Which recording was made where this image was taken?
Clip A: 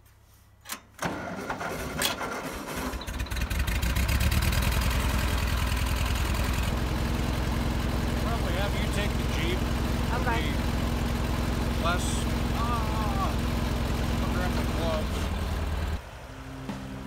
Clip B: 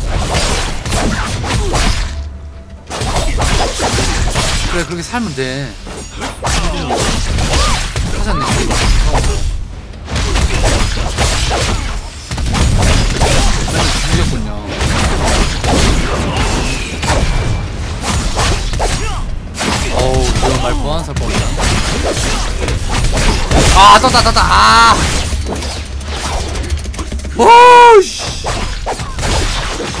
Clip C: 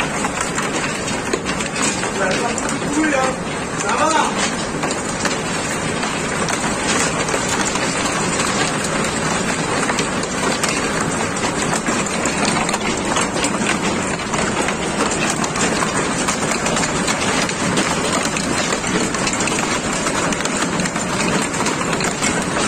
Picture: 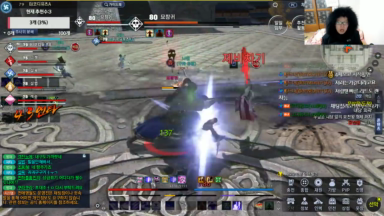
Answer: B